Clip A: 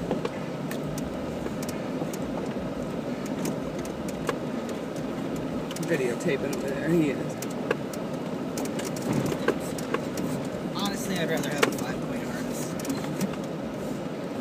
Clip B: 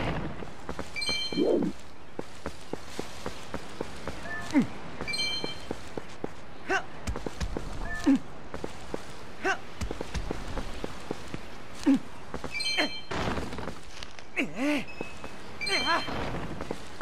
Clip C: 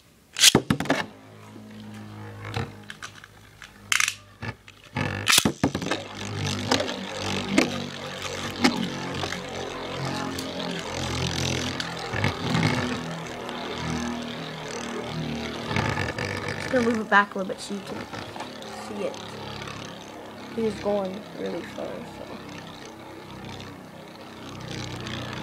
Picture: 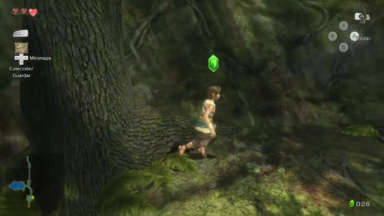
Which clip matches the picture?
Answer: B